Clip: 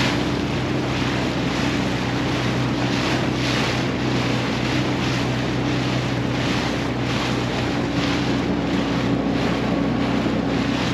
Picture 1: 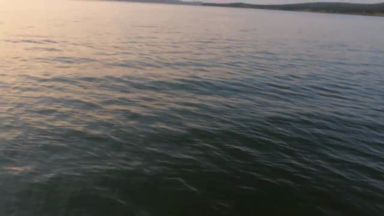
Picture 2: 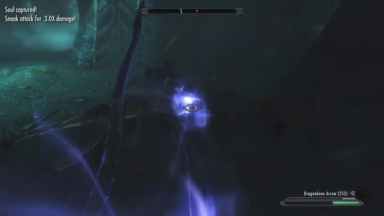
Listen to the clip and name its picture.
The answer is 1